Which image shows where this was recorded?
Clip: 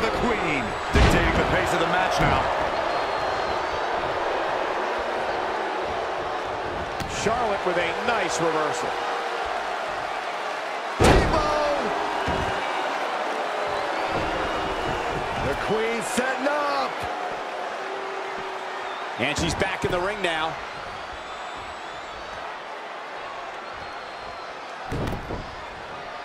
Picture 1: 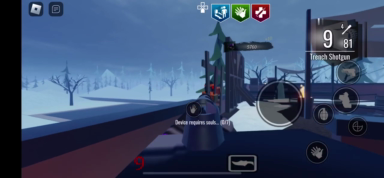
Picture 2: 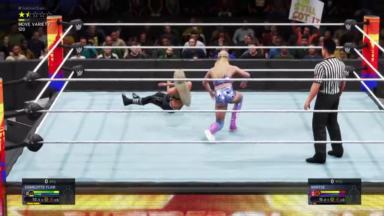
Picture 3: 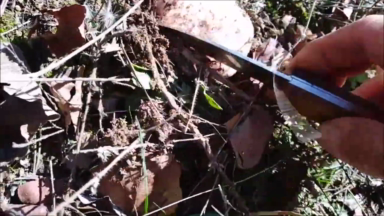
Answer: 2